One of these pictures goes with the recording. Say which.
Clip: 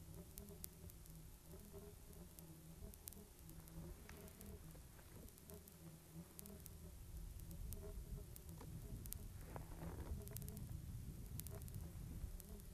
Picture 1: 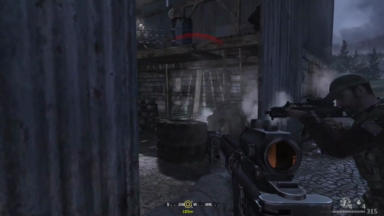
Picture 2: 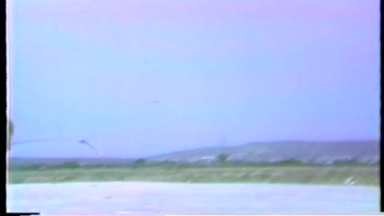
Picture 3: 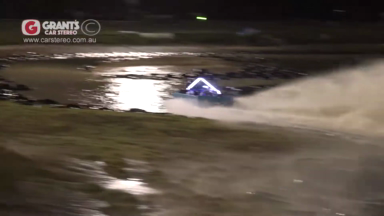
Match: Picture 2